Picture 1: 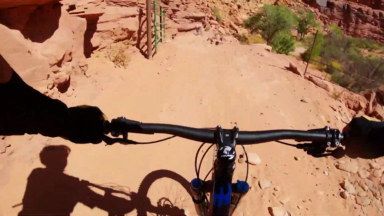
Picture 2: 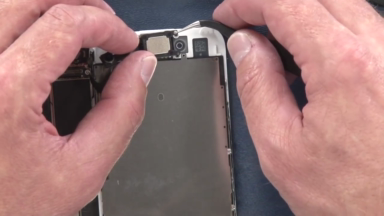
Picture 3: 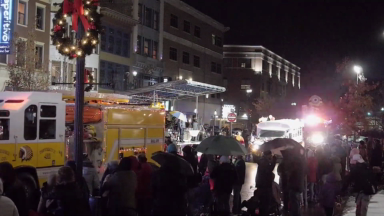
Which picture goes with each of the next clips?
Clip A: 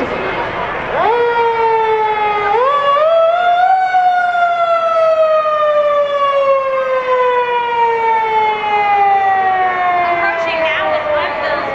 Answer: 3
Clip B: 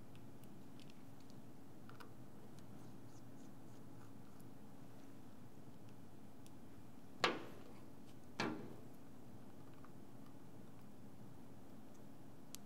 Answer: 2